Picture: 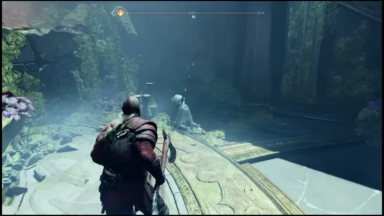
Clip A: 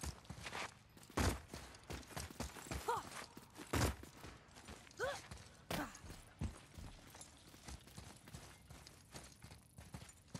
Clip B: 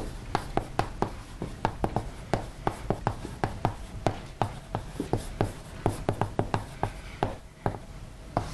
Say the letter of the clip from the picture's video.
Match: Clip A